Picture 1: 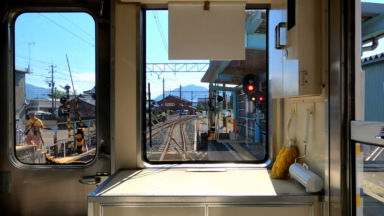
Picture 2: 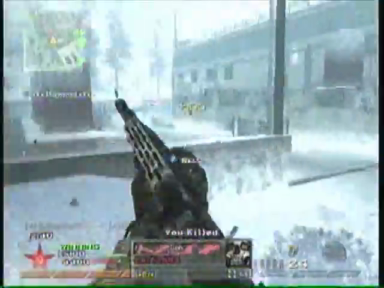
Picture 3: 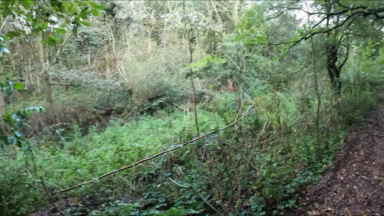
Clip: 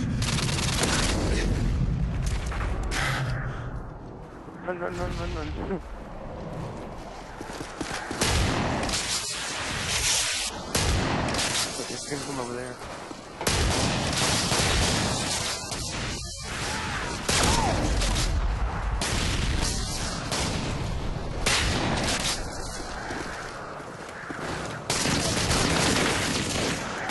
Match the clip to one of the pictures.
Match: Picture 2